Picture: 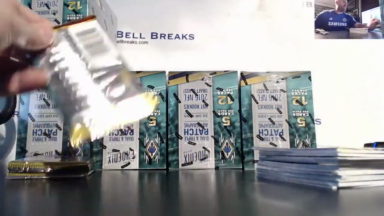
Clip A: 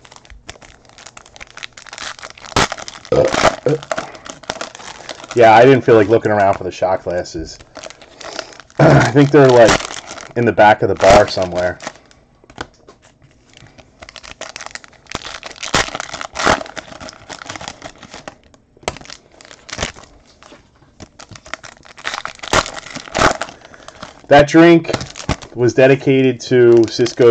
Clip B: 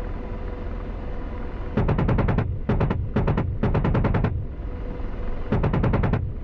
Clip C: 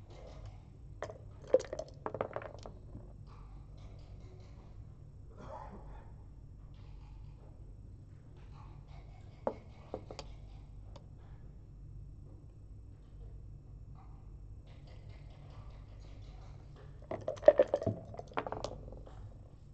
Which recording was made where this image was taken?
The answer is A